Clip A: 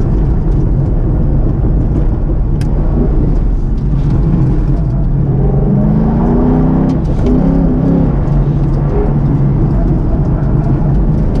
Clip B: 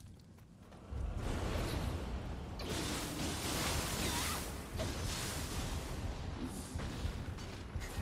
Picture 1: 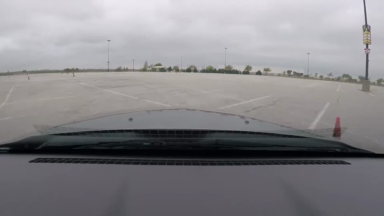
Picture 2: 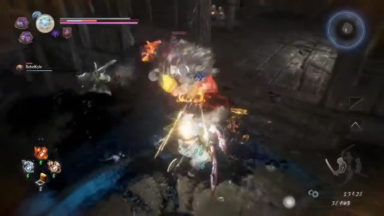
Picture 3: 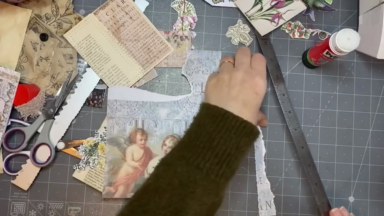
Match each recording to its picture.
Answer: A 1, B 2